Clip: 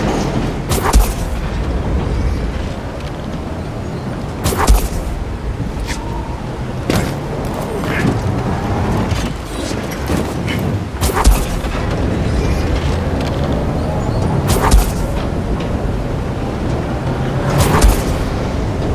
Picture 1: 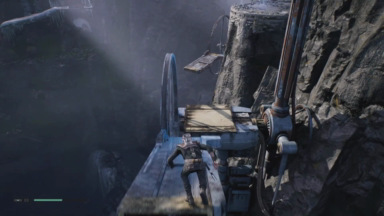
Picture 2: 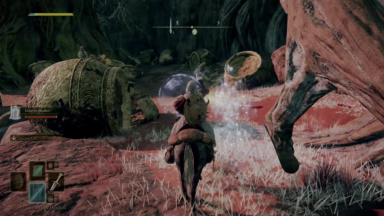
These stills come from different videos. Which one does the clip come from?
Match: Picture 1